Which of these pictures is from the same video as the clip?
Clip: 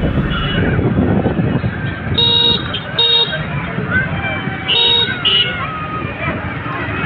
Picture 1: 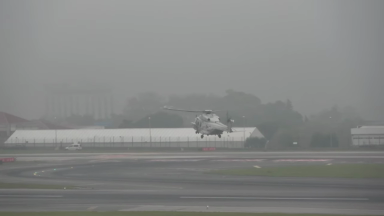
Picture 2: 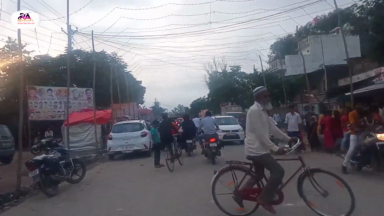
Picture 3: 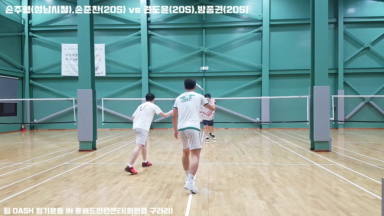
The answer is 2